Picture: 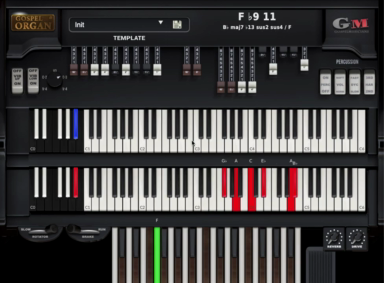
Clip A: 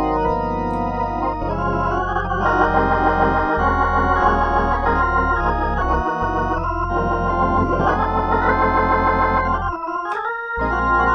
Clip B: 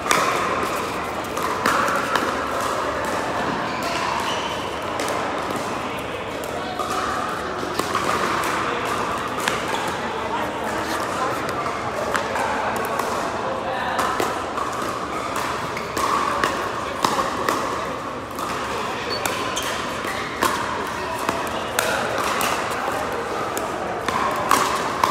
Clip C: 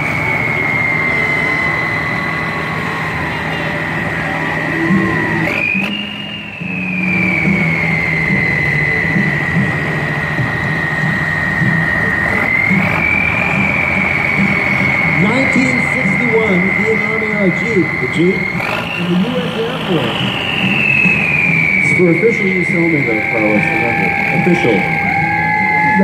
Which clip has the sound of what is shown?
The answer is A